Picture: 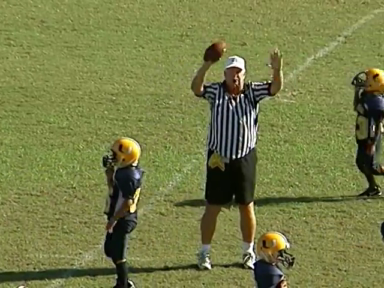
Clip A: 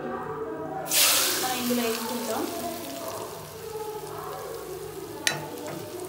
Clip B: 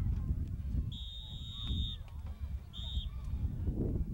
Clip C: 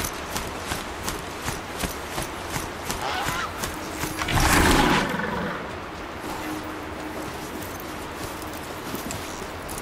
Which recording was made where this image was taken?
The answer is B